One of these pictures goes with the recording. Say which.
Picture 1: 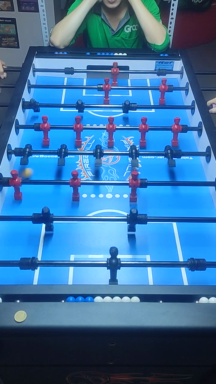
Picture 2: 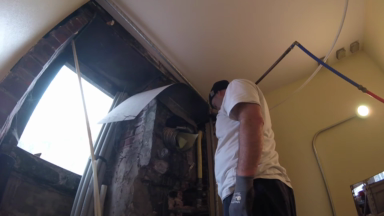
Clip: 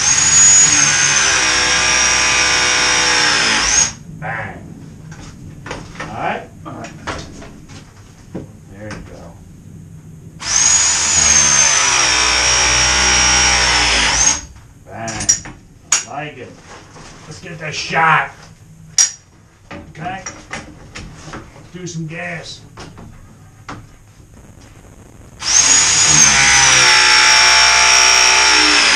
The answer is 2